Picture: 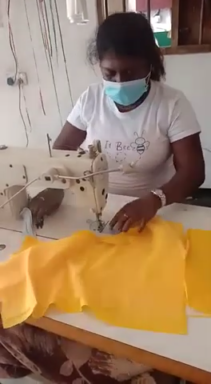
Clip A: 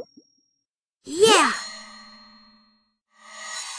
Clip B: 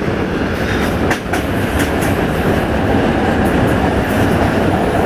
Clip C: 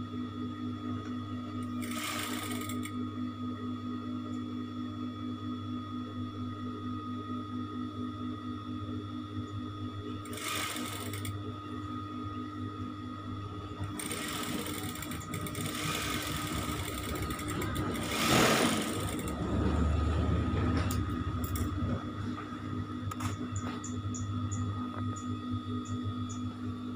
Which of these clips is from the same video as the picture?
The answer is C